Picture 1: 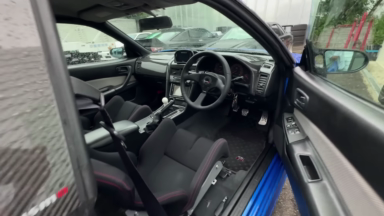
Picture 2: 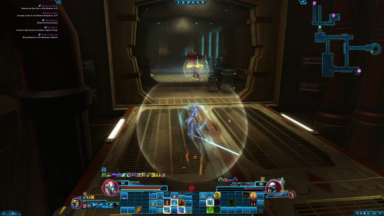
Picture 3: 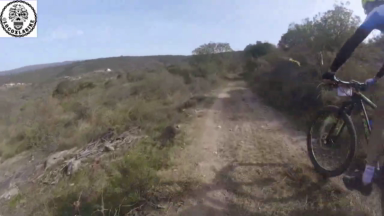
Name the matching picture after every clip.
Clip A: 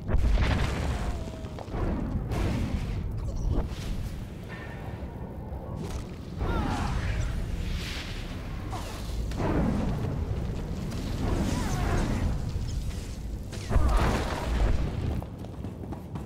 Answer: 2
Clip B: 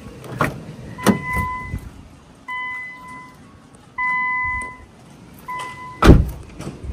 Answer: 1